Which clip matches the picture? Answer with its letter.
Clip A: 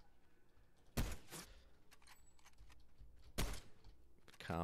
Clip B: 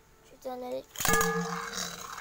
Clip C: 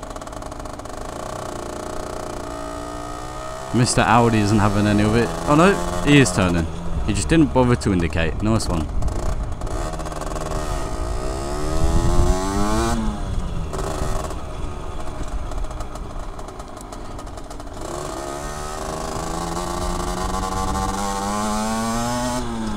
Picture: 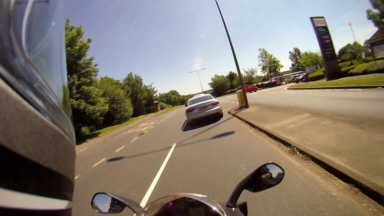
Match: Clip C